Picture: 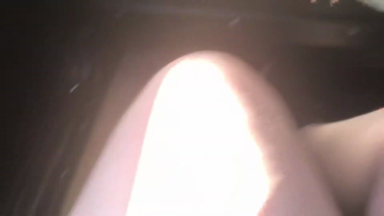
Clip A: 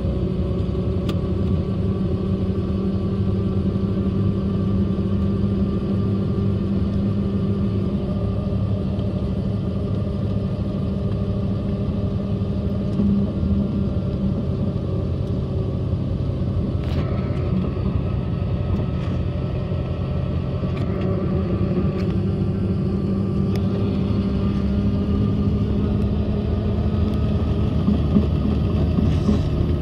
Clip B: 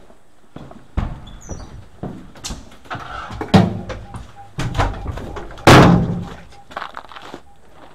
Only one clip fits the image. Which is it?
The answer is A